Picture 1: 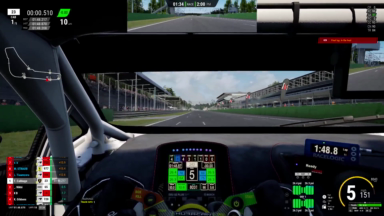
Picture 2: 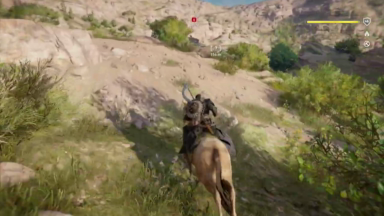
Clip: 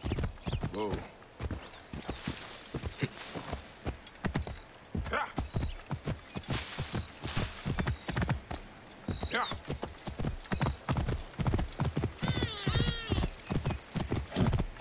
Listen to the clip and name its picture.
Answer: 2